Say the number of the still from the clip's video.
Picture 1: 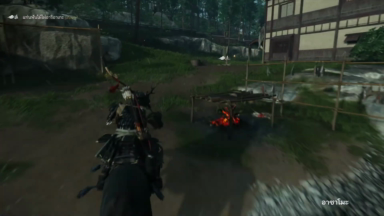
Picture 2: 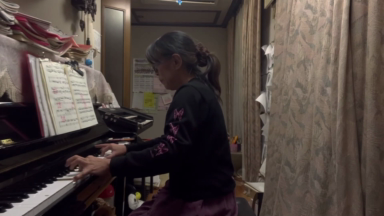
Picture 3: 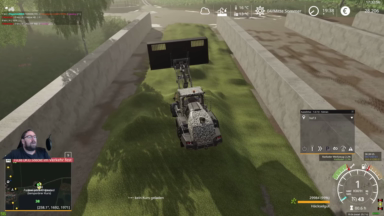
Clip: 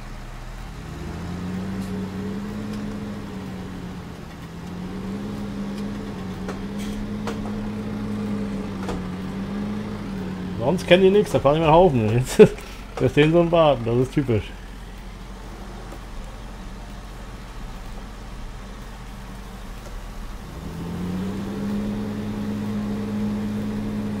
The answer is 3